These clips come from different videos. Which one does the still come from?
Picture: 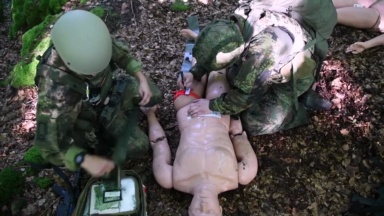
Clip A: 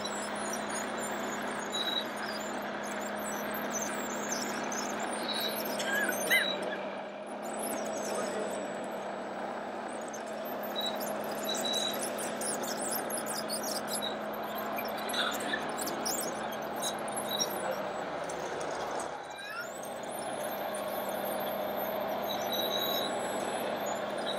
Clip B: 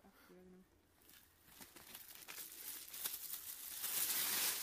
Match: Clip B